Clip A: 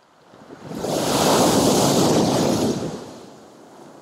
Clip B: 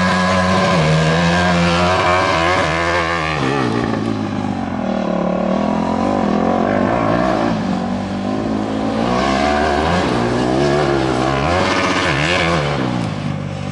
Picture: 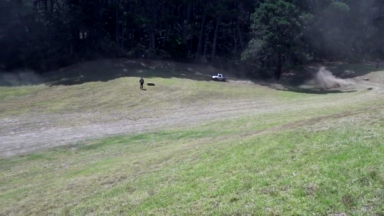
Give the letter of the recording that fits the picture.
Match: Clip B